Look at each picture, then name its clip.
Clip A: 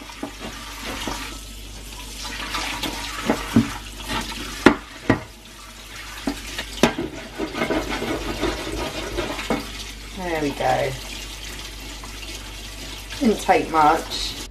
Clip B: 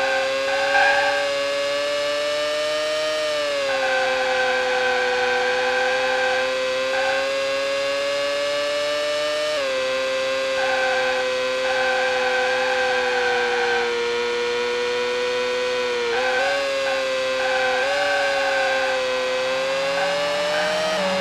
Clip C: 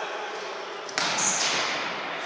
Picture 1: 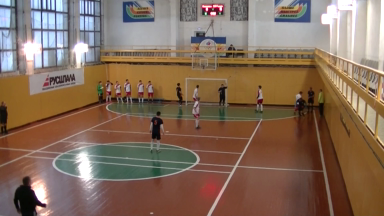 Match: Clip C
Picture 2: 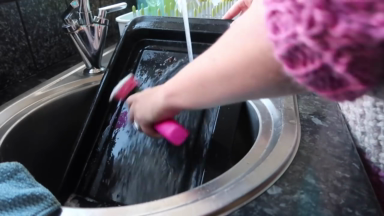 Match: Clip A